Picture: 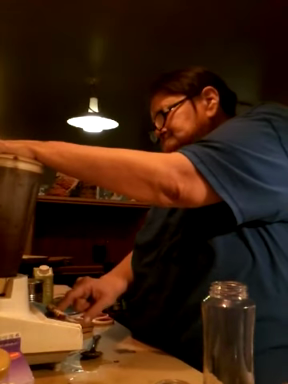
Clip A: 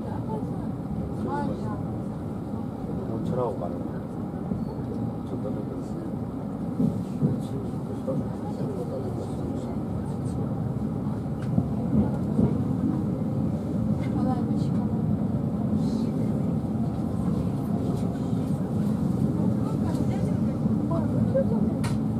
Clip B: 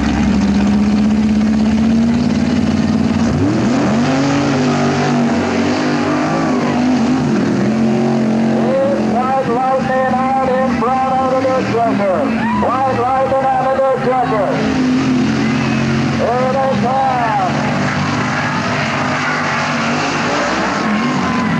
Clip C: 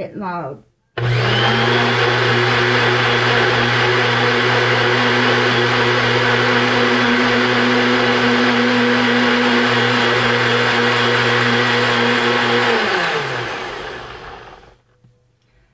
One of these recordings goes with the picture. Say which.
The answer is C